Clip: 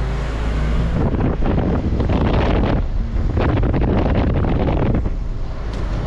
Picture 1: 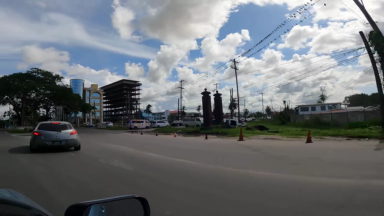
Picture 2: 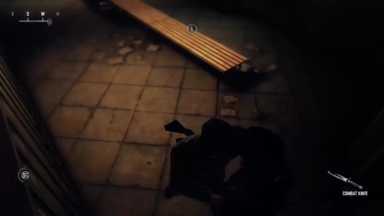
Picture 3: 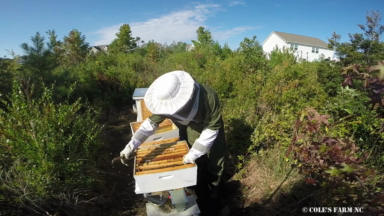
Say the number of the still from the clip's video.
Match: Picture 1